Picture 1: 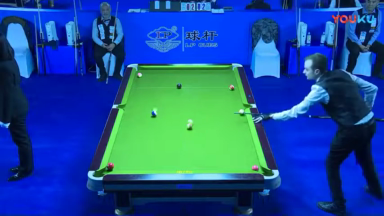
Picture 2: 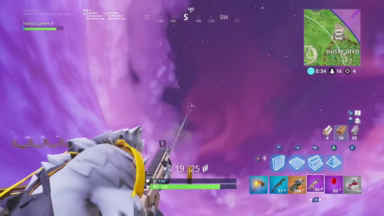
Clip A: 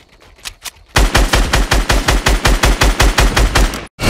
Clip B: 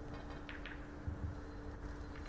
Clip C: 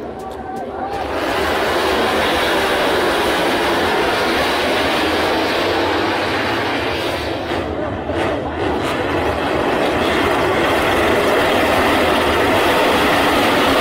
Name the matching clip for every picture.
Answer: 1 B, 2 A